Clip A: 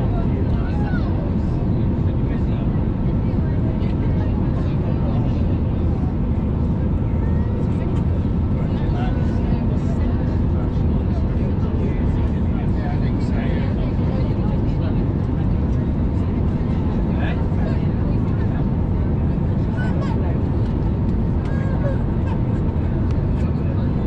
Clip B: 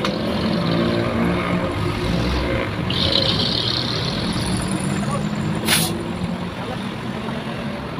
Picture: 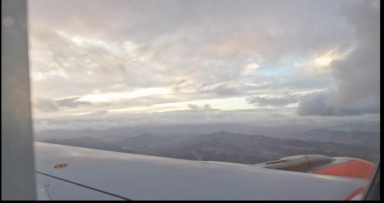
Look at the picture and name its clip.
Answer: A